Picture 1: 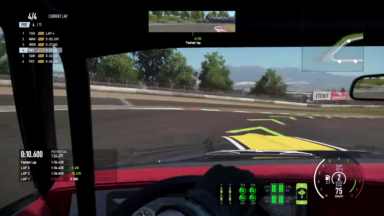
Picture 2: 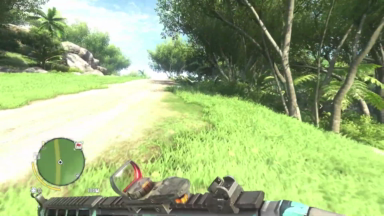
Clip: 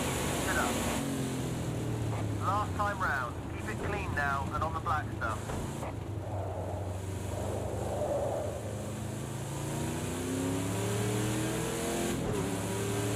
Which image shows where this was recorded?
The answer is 1